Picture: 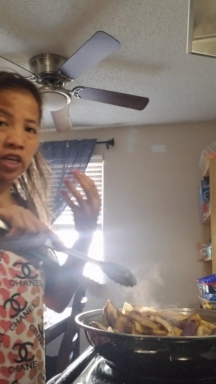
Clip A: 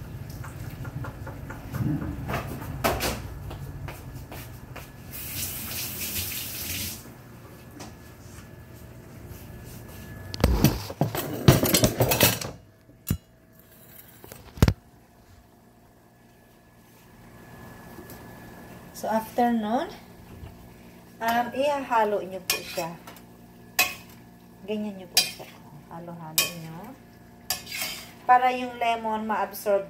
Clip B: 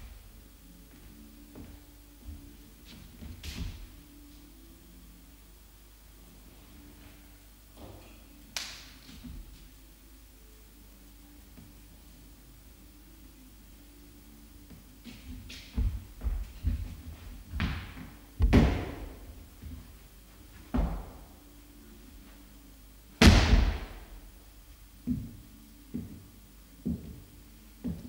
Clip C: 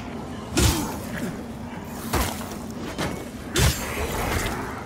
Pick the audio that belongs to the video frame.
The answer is A